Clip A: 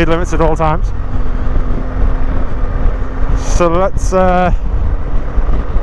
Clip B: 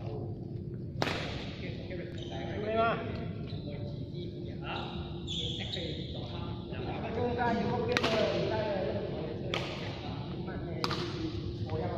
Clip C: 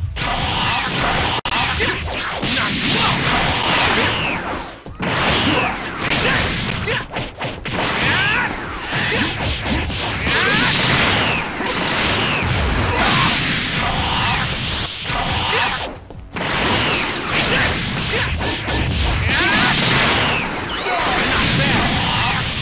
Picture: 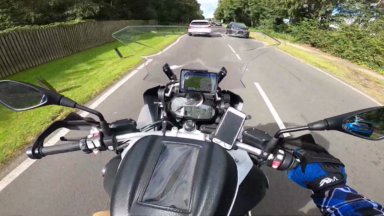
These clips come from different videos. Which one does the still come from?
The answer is A